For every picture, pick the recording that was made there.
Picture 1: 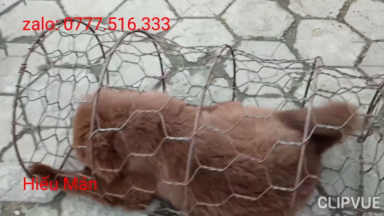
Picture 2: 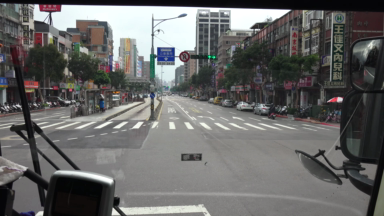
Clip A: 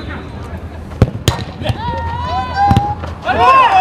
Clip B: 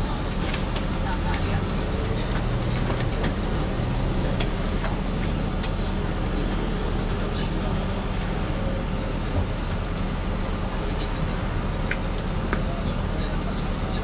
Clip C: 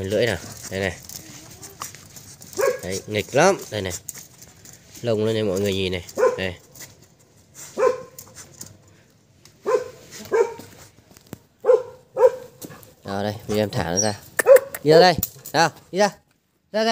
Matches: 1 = C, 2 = B